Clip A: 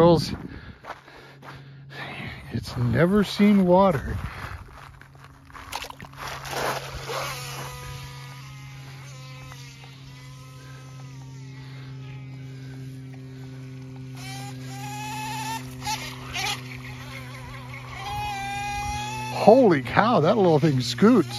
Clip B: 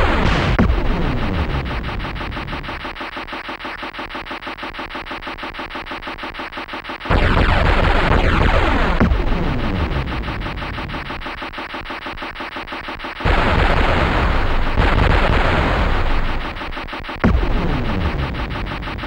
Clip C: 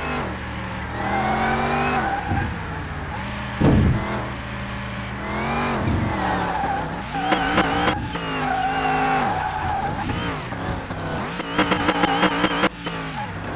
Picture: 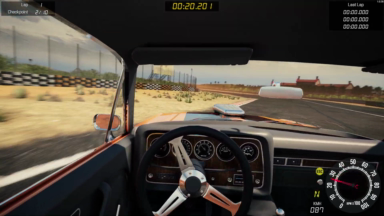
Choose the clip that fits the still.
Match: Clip C